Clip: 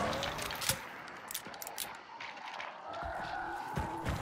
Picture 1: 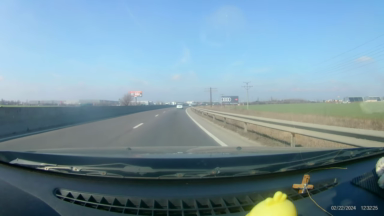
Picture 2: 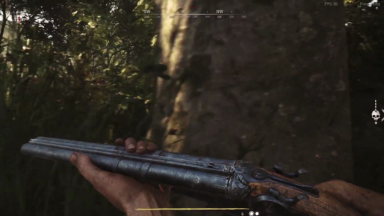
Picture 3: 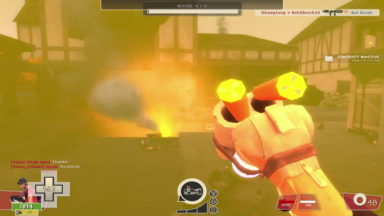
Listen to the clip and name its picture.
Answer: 2